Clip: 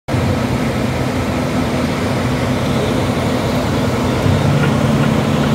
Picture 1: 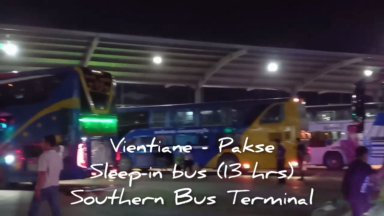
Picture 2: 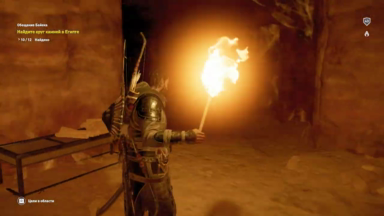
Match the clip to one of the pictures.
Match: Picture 1